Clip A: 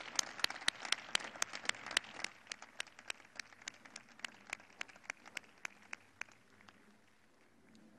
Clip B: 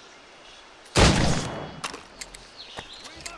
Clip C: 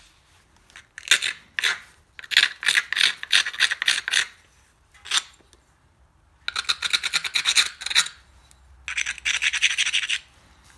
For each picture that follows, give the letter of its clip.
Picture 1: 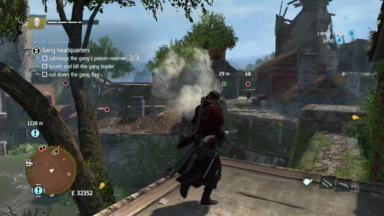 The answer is B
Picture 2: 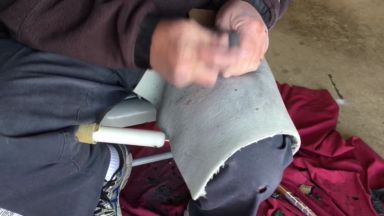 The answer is C